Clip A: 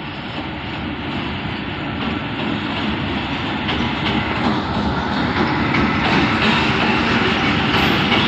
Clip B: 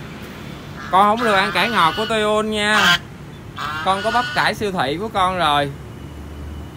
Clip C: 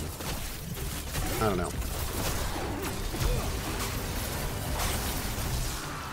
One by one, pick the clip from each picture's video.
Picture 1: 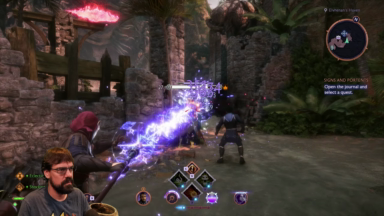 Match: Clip C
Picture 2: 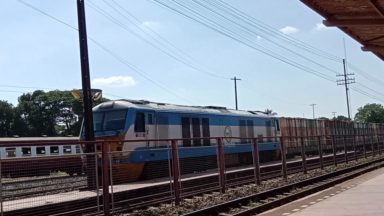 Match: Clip A